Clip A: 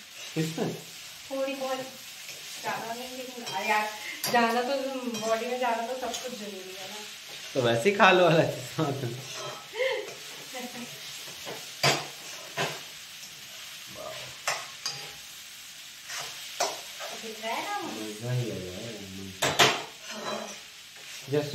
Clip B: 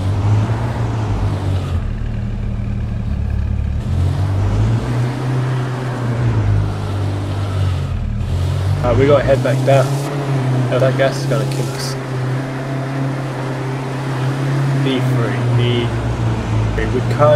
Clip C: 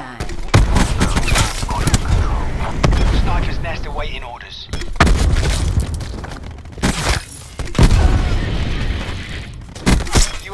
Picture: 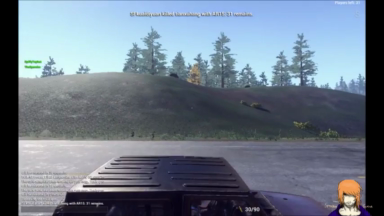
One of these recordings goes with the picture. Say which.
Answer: B